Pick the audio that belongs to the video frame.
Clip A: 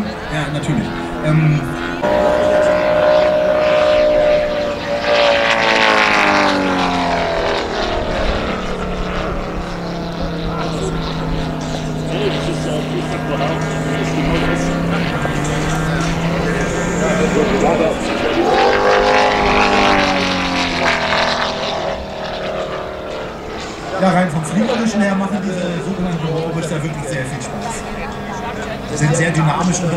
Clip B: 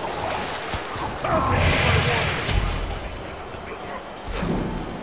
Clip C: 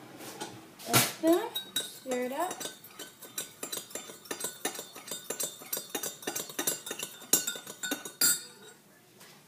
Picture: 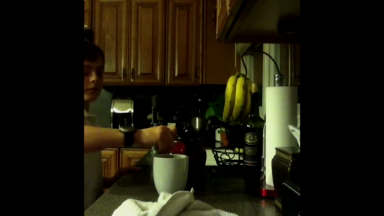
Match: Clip C